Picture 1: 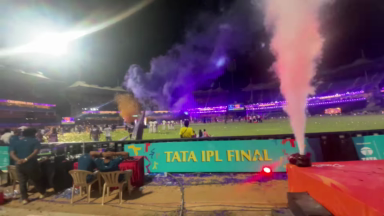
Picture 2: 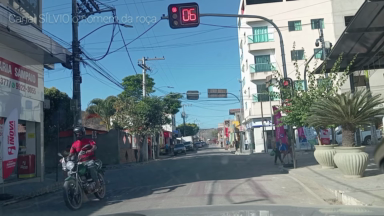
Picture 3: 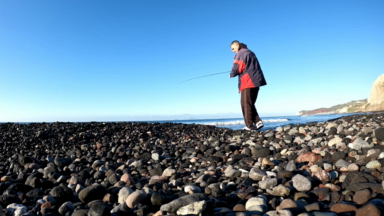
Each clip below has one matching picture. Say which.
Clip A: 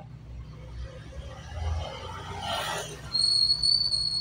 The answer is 2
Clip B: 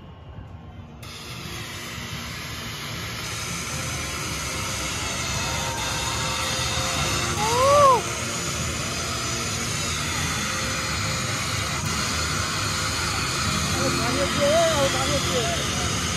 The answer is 1